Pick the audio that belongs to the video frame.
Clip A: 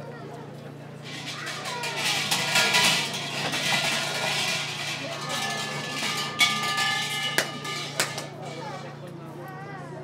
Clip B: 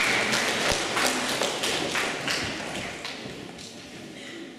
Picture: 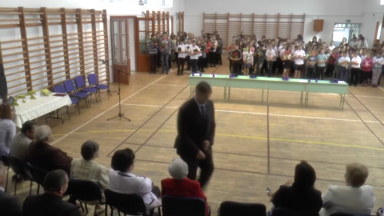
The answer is B